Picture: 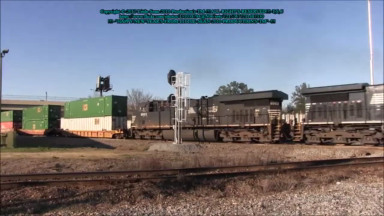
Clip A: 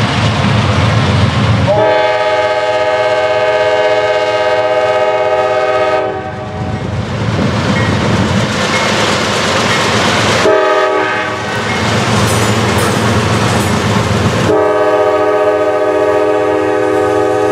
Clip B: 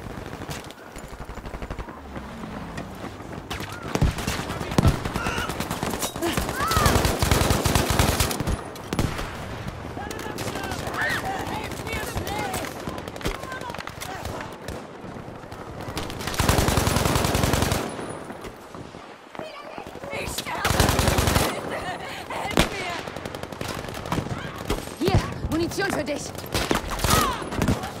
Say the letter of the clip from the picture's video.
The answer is A